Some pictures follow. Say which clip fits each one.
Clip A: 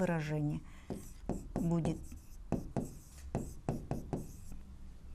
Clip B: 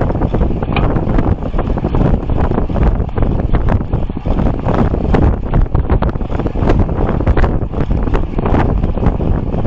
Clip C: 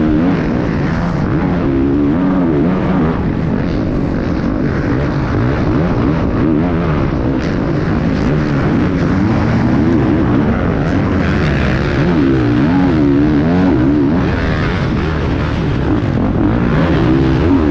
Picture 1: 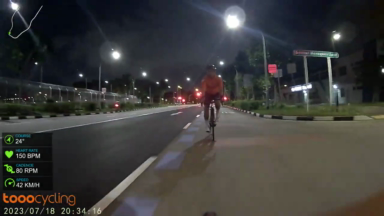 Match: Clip B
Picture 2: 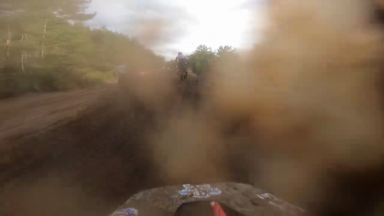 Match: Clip C